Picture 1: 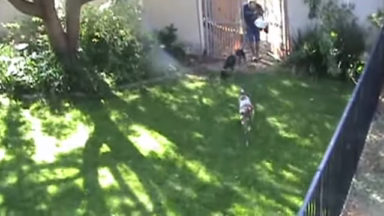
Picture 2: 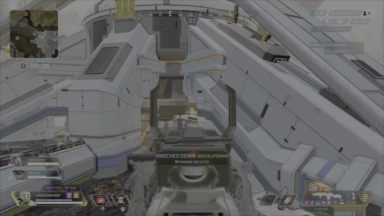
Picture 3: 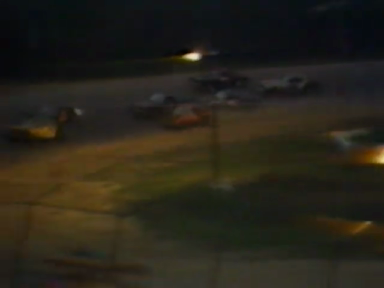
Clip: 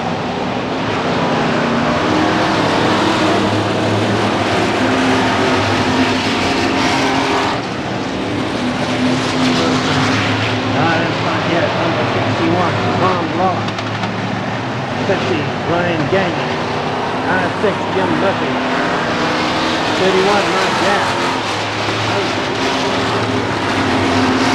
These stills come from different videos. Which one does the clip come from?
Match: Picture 3